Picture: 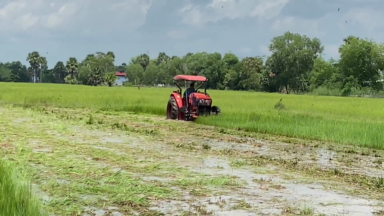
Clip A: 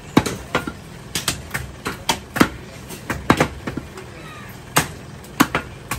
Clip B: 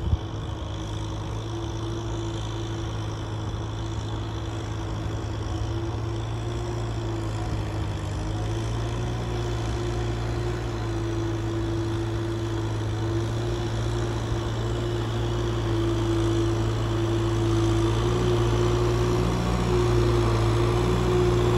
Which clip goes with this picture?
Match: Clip B